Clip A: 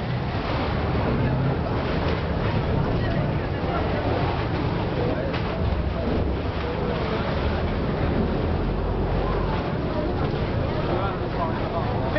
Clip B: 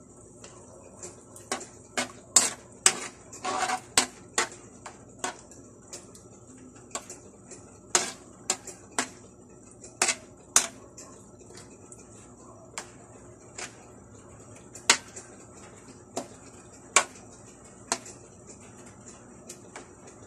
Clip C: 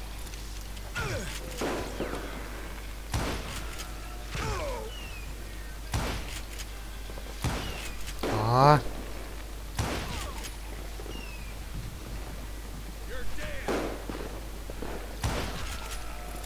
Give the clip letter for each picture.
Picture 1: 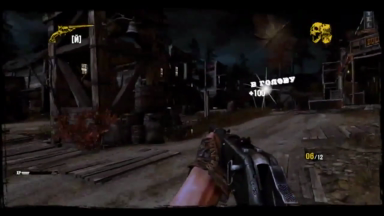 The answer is C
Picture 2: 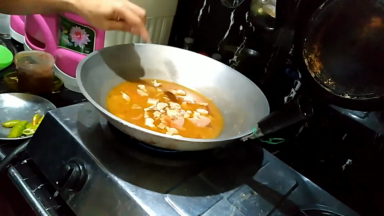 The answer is B